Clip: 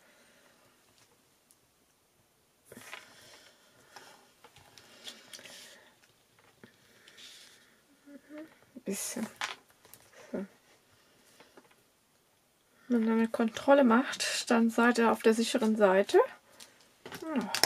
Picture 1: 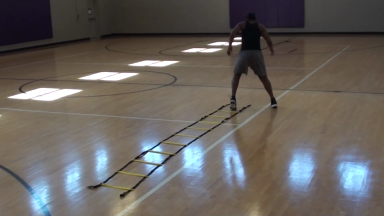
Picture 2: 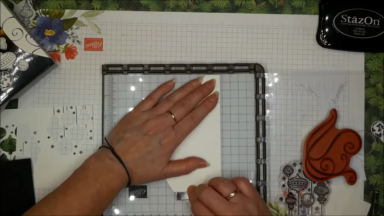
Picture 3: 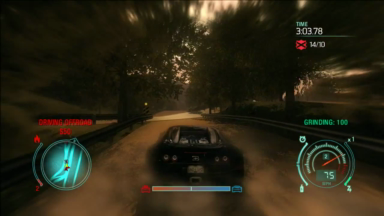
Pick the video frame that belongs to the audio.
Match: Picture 2